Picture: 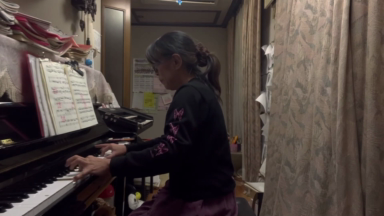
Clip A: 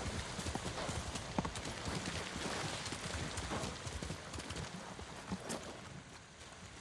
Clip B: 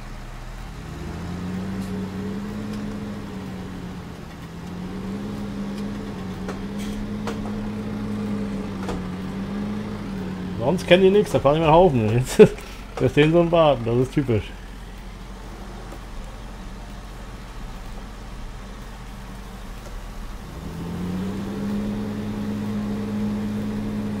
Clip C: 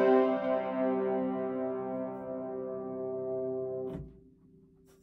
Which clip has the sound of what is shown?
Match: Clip C